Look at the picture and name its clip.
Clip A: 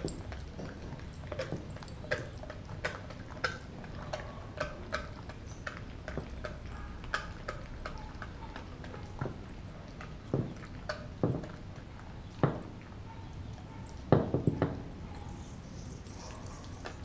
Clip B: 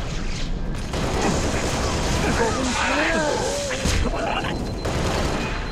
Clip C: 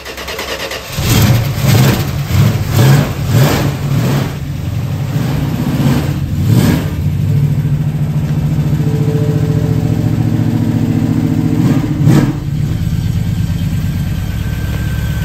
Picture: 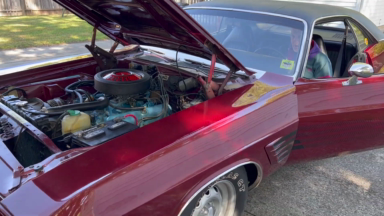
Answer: C